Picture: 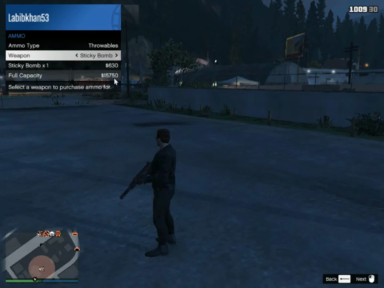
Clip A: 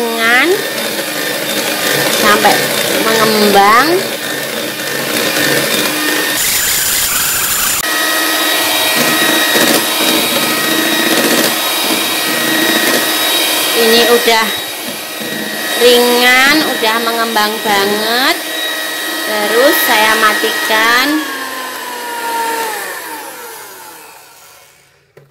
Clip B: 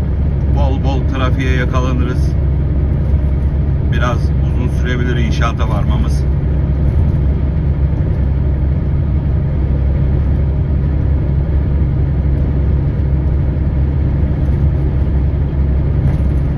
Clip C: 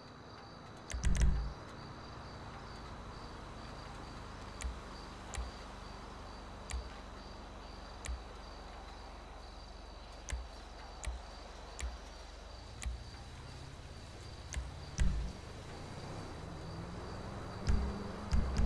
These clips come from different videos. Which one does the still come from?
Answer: C